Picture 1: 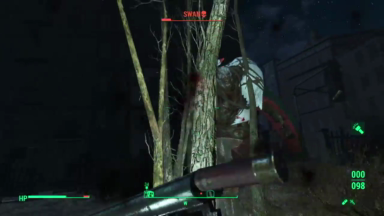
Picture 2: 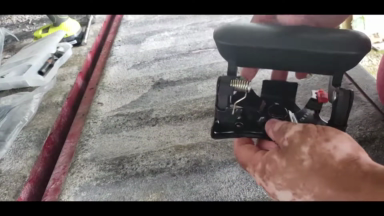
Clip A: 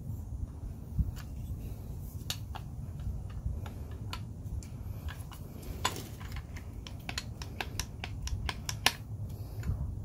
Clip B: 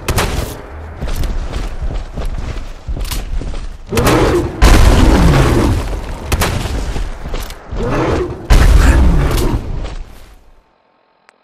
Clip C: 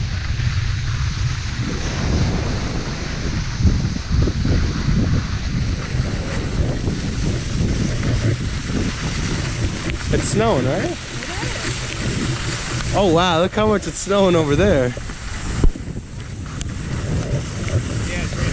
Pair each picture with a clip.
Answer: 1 B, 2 A